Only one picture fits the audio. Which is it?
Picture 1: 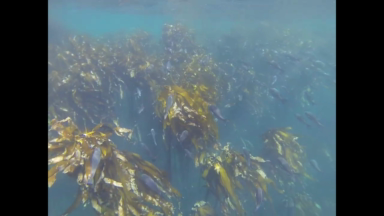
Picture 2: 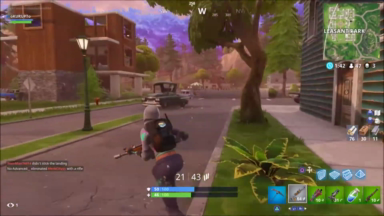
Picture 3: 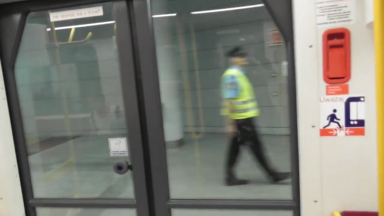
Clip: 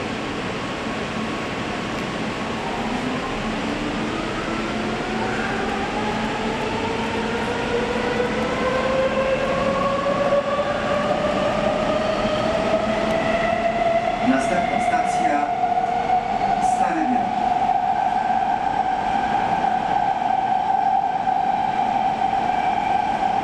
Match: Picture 3